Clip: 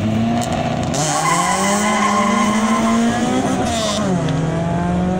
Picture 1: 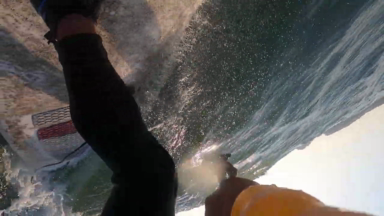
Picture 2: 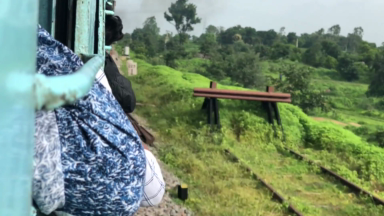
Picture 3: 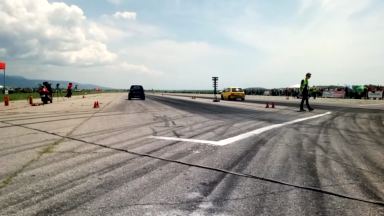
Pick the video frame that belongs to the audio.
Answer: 3